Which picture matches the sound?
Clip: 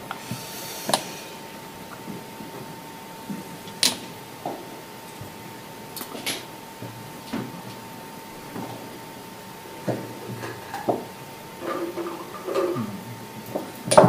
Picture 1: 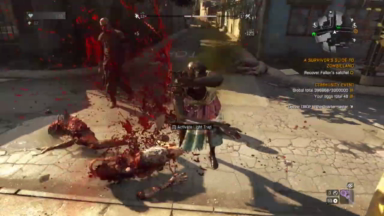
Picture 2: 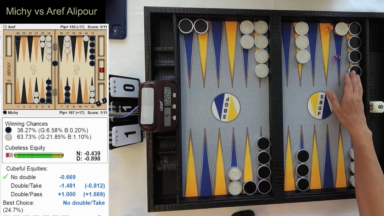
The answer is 2